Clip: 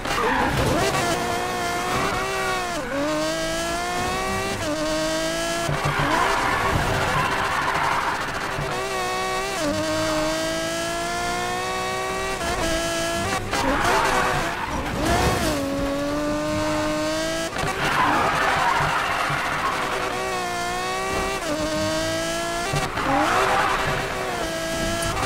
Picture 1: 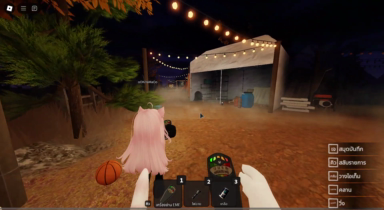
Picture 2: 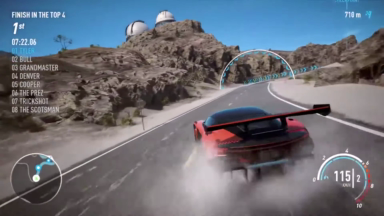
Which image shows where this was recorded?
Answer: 2